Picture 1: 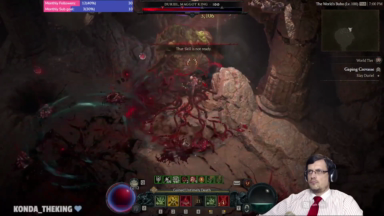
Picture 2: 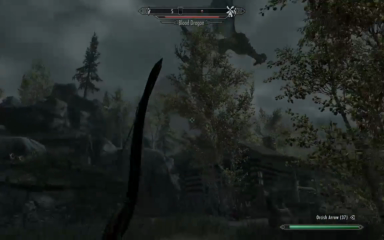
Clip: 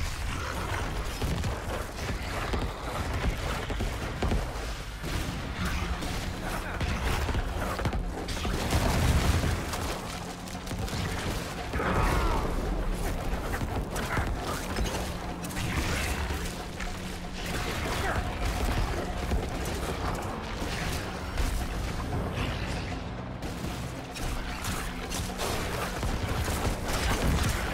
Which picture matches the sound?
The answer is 1